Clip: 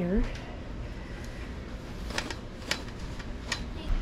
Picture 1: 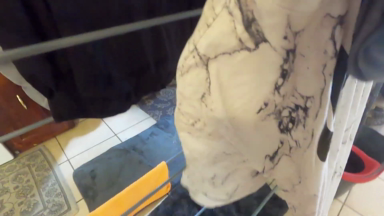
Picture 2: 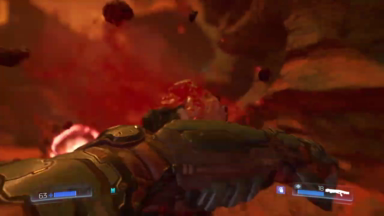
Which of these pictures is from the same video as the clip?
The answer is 1